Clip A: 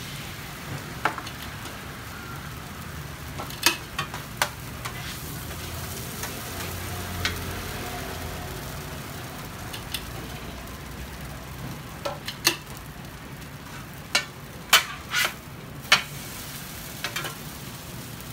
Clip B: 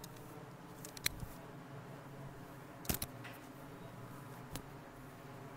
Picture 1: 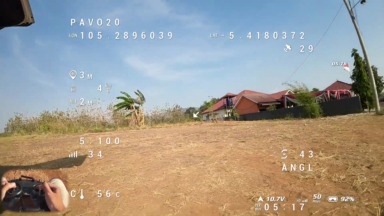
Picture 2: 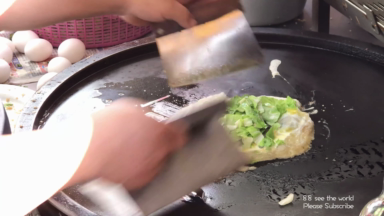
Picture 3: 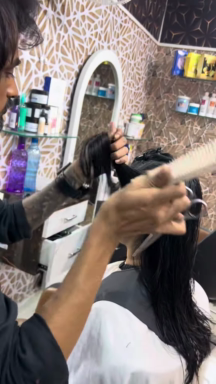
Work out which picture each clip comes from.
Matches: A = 2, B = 3